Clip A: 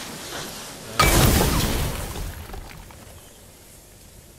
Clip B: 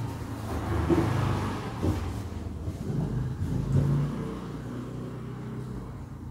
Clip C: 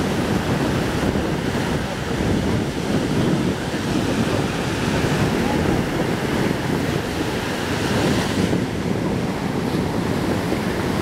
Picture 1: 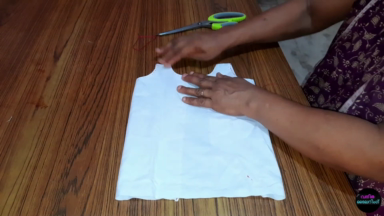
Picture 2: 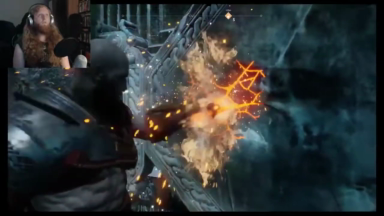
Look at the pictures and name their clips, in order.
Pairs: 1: B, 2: A